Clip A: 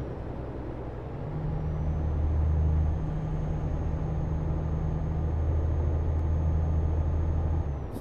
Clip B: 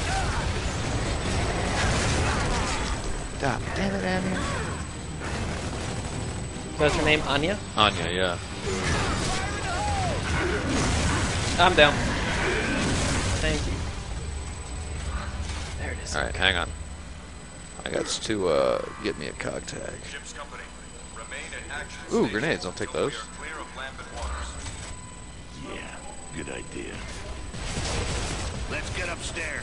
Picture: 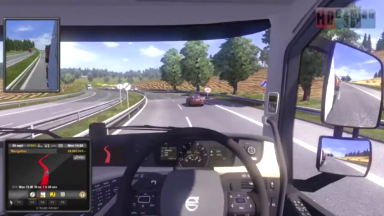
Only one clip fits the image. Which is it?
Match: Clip A